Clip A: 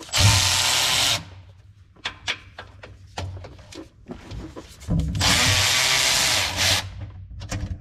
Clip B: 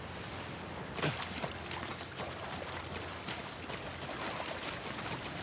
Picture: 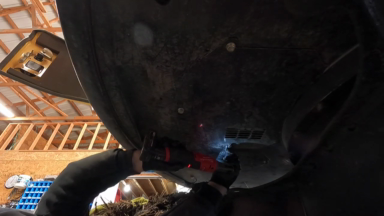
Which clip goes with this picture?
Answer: A